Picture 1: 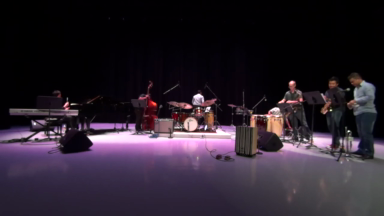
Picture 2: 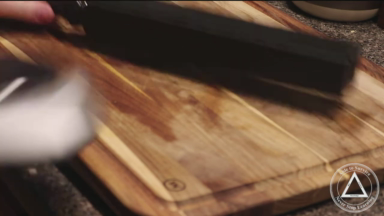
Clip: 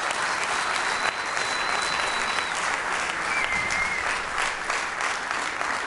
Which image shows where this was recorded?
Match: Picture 1